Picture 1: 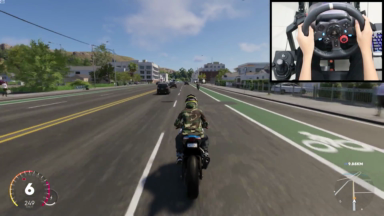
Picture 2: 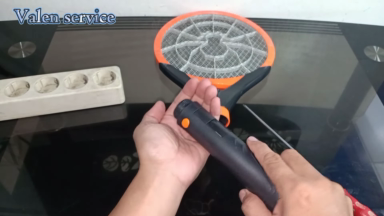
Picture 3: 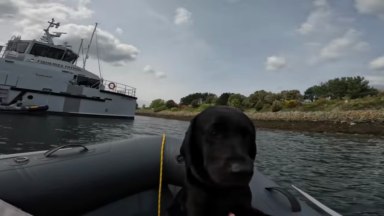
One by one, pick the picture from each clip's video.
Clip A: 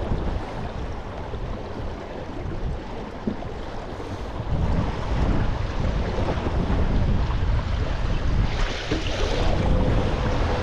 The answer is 3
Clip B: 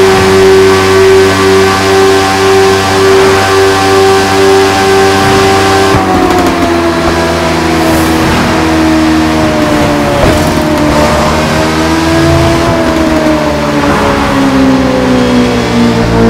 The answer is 1